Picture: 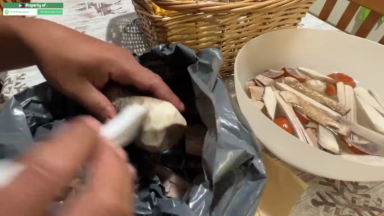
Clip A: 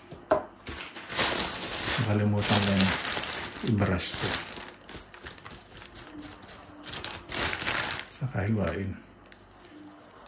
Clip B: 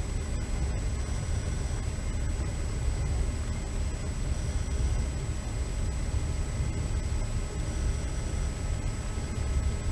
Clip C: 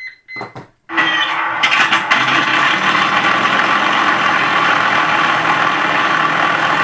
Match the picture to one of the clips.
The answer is A